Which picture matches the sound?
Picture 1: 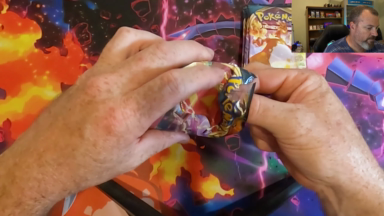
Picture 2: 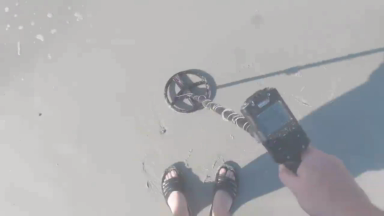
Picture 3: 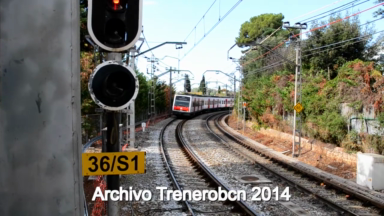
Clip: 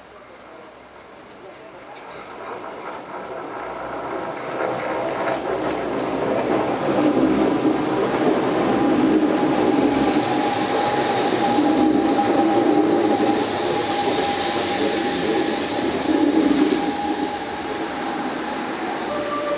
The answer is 3